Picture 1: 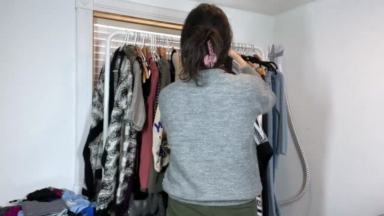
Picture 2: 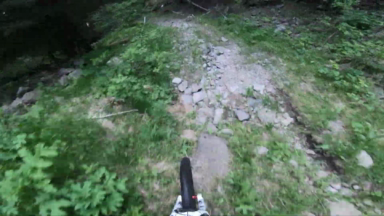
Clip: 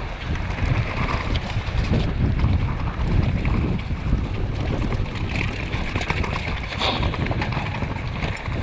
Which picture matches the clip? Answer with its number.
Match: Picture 2